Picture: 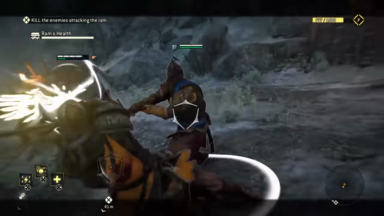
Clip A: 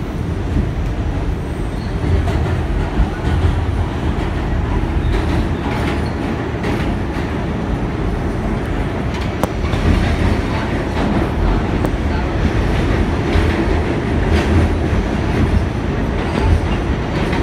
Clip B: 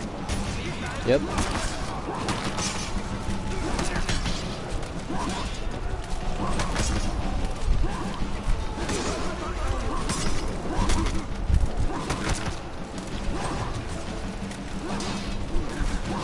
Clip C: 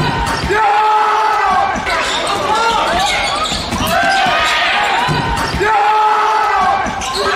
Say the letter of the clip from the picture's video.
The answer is B